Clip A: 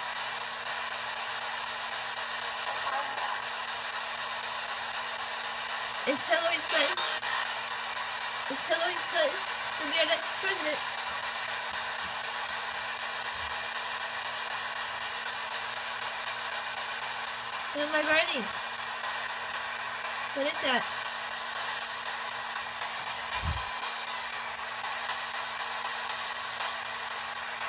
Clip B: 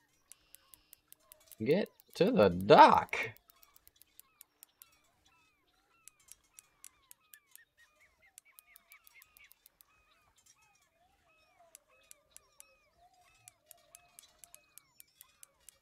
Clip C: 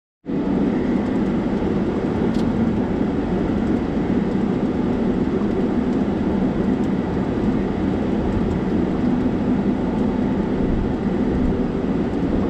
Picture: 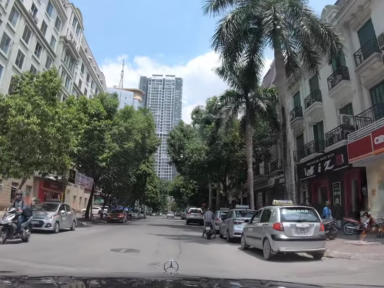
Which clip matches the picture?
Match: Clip C